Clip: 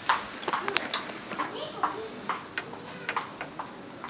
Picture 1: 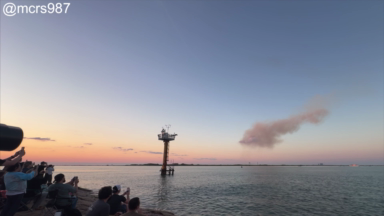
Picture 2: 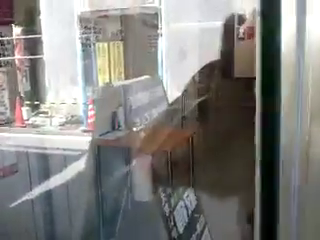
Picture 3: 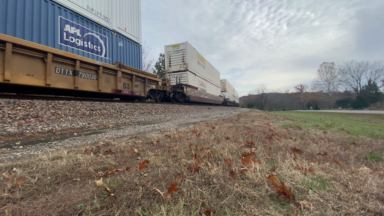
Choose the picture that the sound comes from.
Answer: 2